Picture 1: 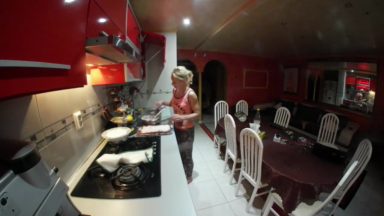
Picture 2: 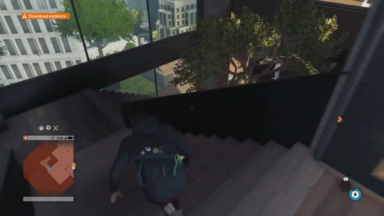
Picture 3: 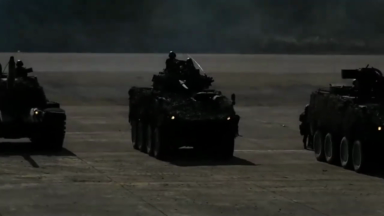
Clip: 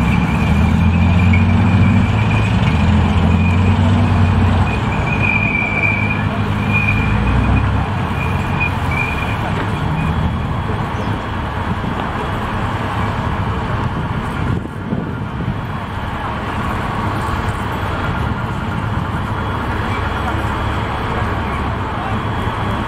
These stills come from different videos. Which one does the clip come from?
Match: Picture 3